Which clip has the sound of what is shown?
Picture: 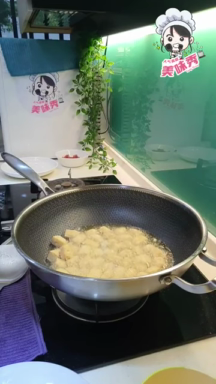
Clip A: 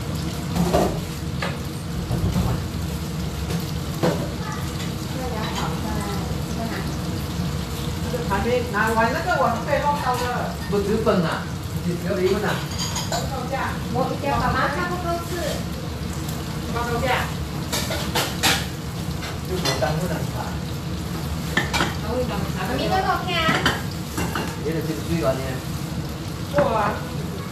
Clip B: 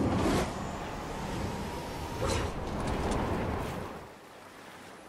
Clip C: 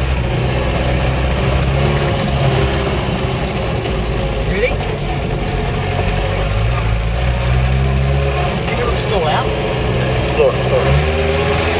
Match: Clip A